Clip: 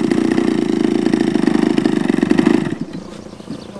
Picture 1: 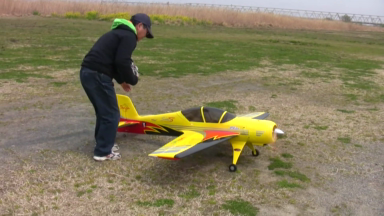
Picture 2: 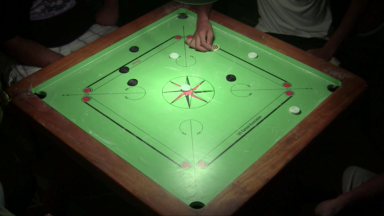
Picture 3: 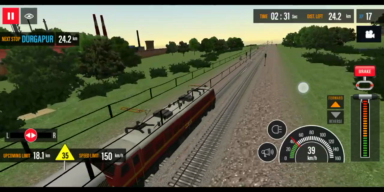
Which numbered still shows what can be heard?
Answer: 1